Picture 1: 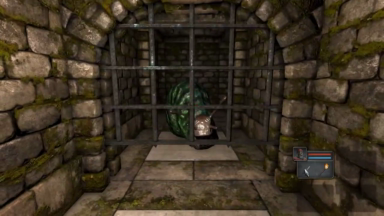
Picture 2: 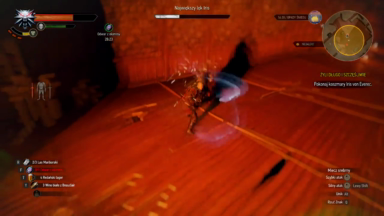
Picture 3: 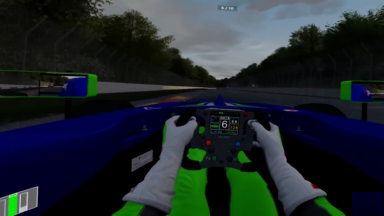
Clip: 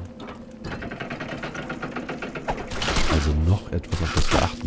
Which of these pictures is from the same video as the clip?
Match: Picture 1